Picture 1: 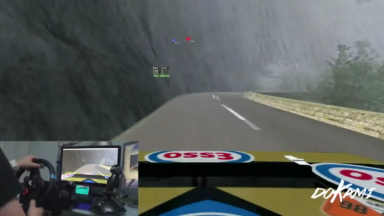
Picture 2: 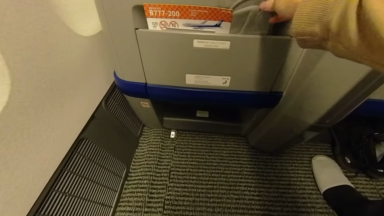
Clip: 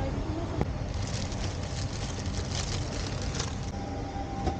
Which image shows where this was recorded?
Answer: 2